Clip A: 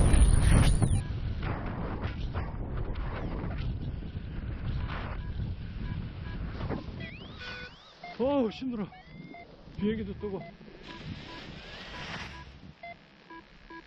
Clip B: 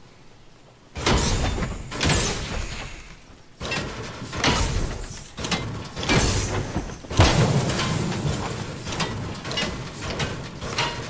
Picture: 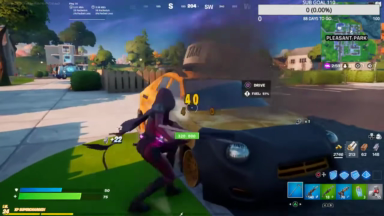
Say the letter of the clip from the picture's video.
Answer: B